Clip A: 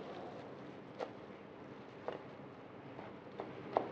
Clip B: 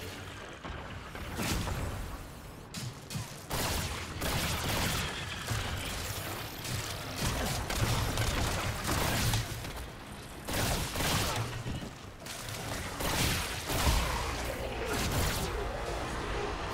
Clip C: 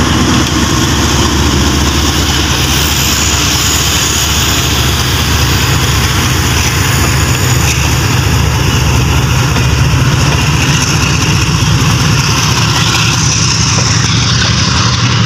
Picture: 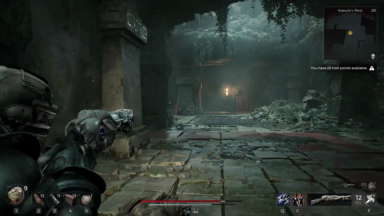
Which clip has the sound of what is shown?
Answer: B